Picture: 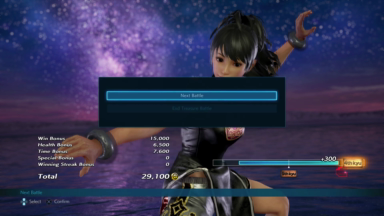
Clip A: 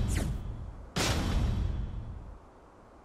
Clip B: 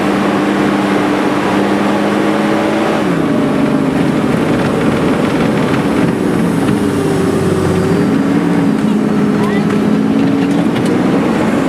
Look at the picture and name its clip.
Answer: A